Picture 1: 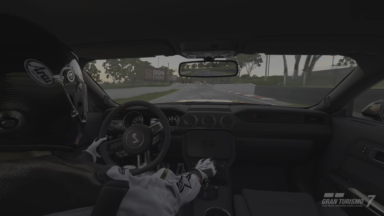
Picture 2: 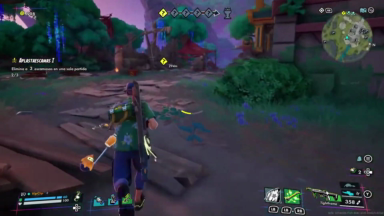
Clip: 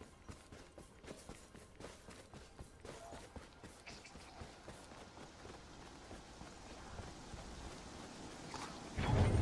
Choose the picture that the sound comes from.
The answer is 2